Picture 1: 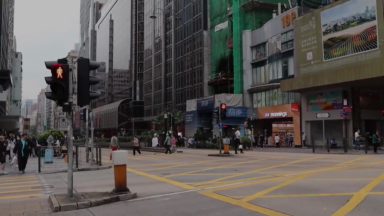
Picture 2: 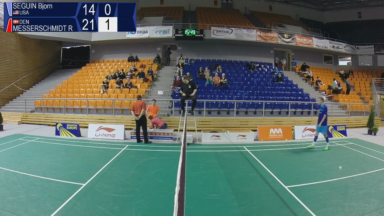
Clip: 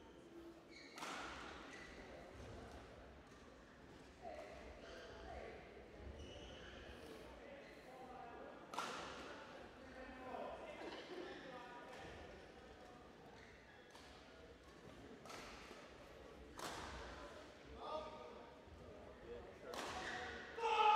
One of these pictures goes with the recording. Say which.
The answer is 2